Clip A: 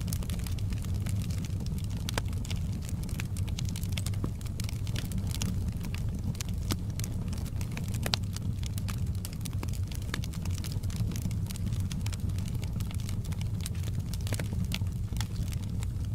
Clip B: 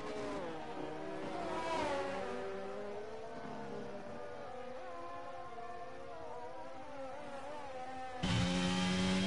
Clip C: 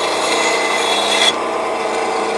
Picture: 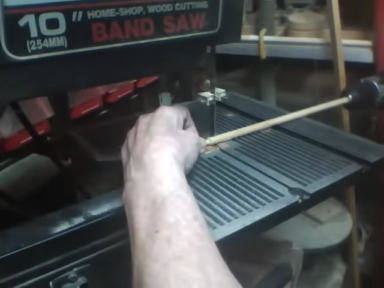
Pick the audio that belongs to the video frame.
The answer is C